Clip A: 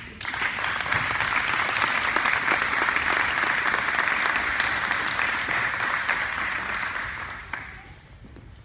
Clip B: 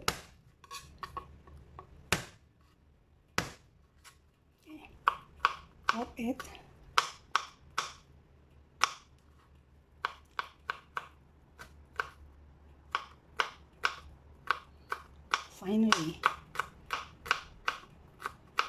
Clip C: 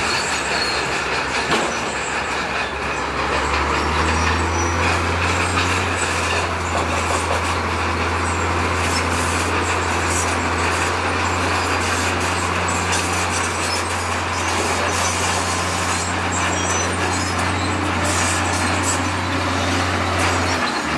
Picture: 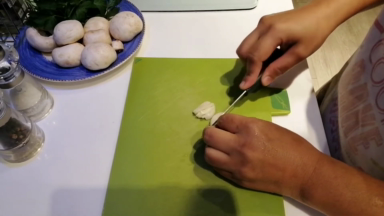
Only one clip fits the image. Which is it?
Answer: B